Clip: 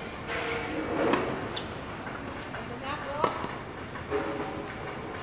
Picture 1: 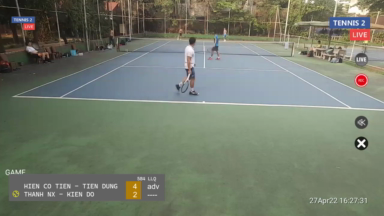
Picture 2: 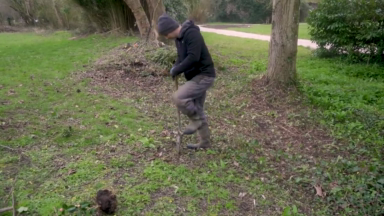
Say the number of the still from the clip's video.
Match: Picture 1